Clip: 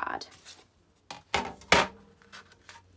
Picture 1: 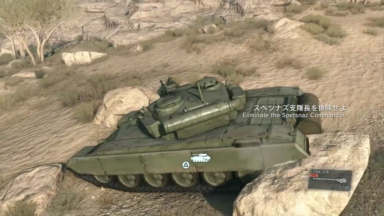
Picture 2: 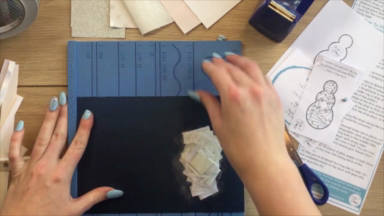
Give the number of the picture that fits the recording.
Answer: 2